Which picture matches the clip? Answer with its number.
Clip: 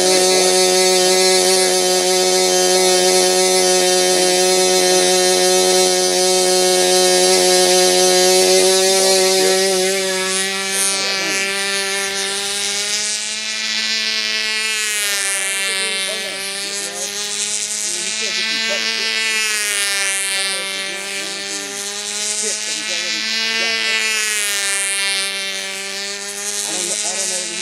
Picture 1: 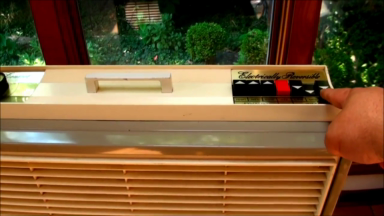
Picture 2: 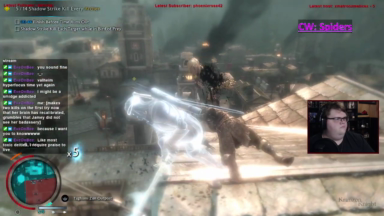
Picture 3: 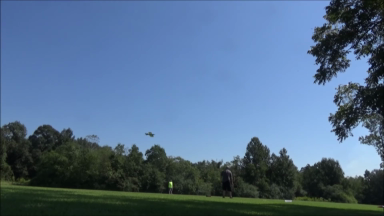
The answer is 3